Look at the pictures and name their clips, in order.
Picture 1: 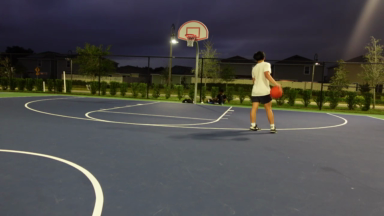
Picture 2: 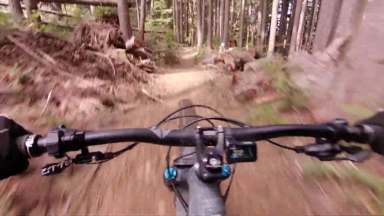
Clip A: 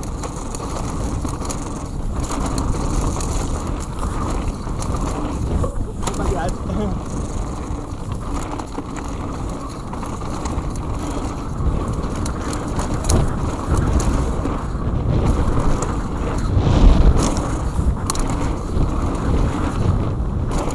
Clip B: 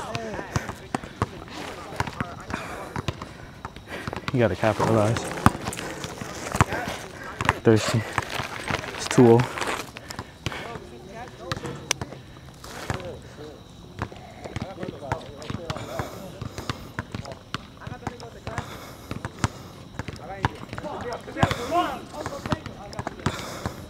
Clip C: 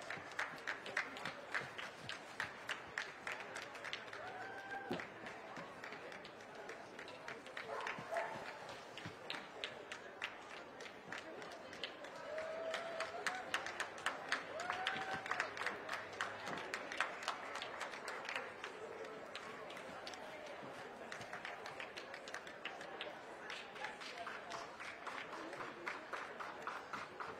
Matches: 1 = B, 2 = A